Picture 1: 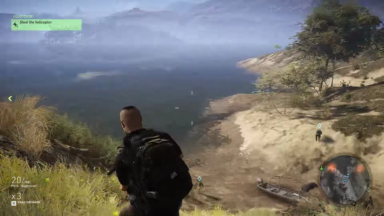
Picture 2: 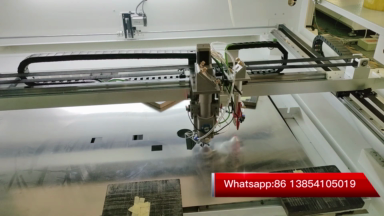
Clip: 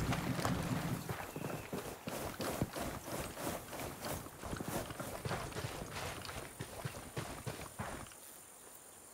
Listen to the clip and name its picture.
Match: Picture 1